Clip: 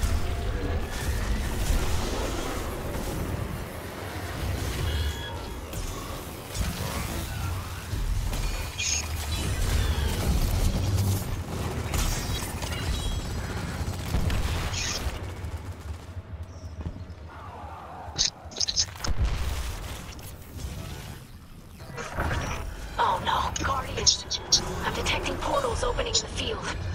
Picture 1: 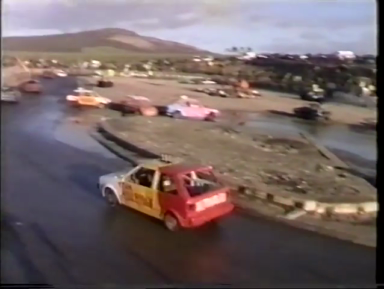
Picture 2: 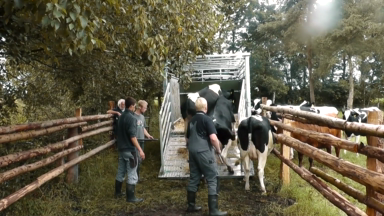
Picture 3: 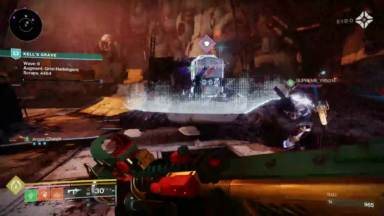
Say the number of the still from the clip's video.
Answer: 3